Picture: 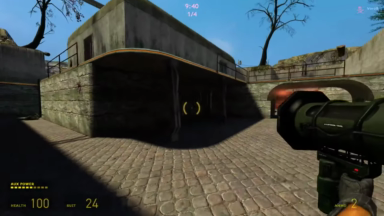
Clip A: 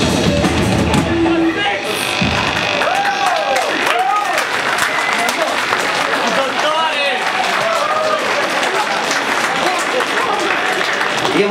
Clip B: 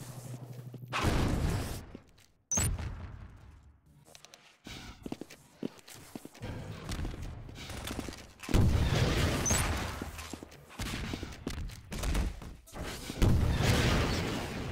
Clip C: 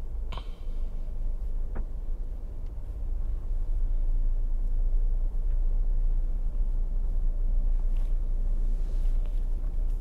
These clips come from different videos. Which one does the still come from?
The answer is B